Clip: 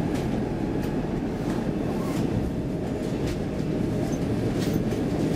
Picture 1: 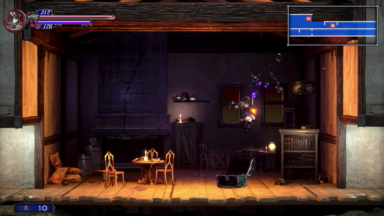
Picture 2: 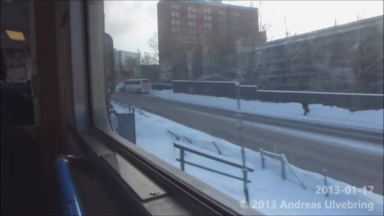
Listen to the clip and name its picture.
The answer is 2